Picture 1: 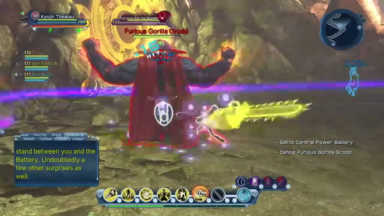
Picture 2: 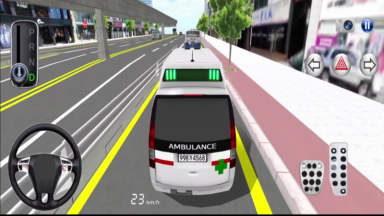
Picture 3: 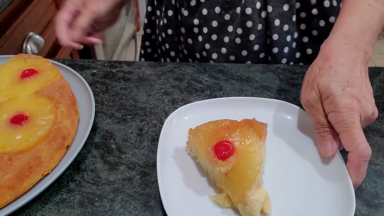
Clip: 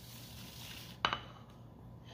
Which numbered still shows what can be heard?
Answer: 3